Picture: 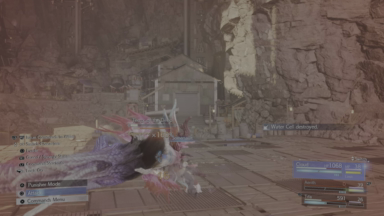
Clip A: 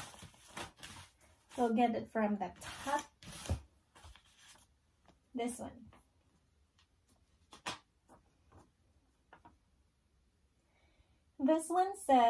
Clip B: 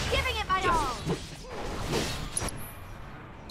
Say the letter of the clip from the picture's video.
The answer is B